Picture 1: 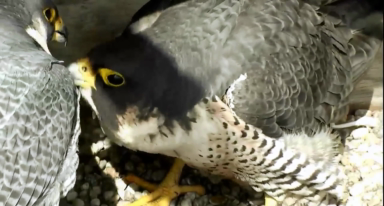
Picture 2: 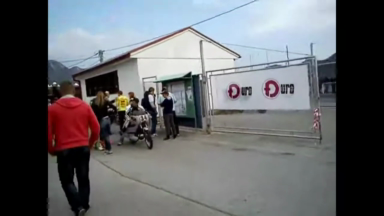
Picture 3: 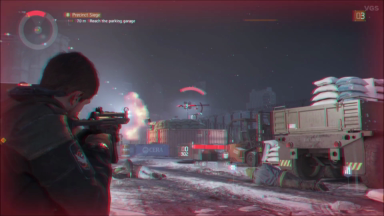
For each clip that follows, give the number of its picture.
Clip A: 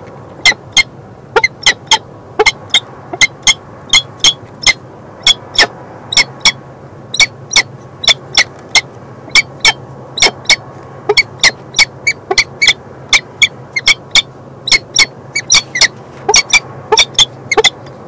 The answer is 1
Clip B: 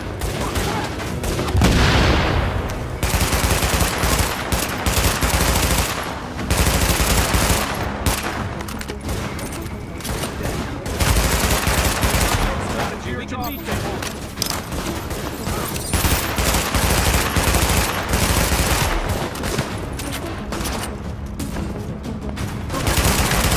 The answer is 3